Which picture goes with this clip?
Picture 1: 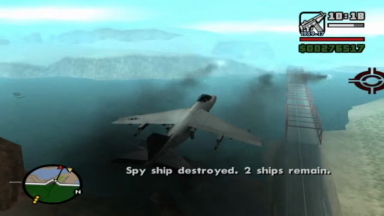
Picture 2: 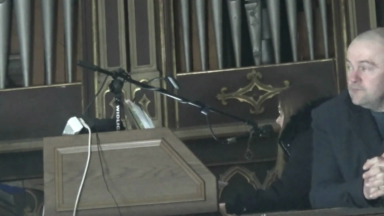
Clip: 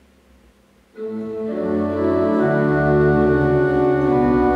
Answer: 2